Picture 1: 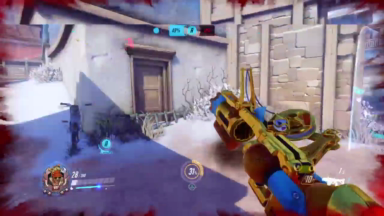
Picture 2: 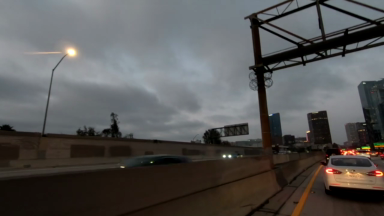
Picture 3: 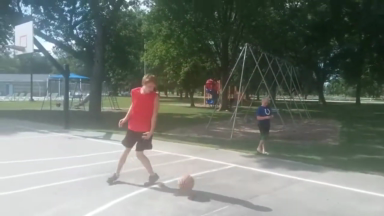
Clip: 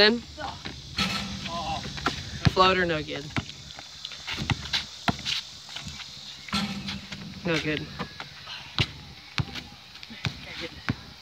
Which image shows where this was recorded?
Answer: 3